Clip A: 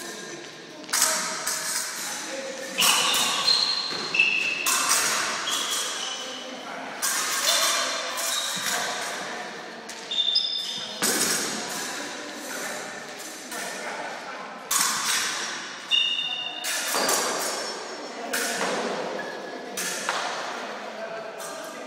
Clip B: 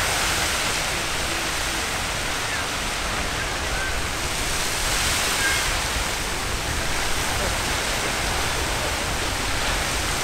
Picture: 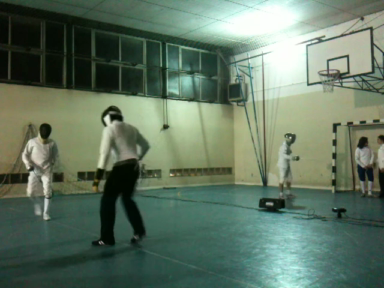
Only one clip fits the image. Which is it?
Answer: A